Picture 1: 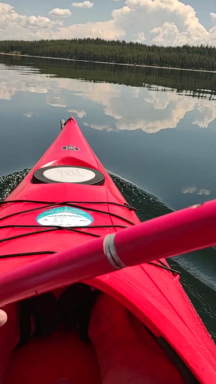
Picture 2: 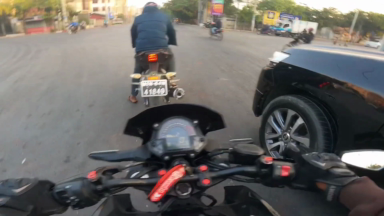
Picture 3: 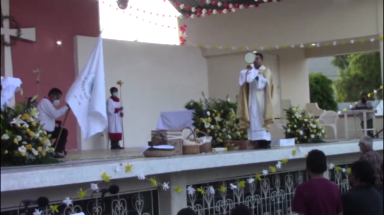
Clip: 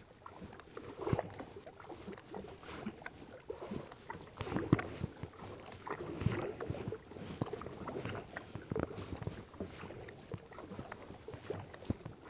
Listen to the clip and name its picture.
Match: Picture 1